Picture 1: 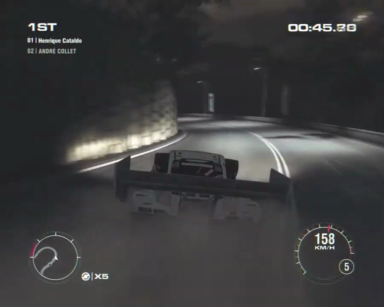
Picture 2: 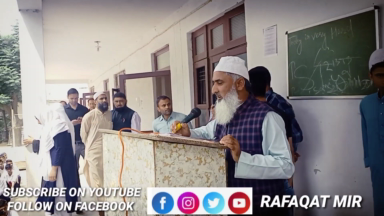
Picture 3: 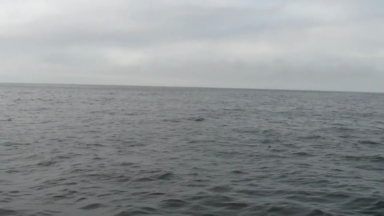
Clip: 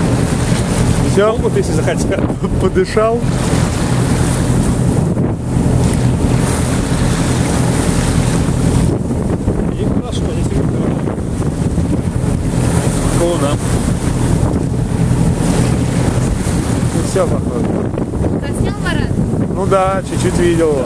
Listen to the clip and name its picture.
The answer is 3